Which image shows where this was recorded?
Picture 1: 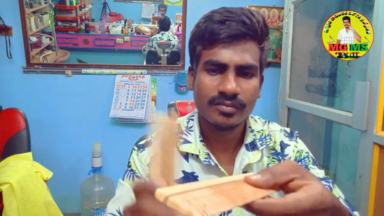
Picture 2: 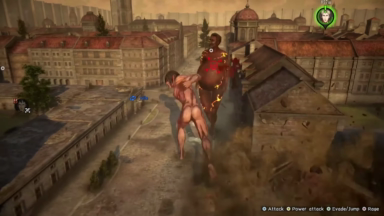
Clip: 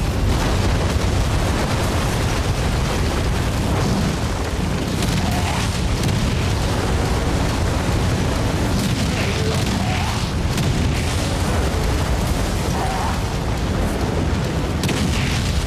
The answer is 2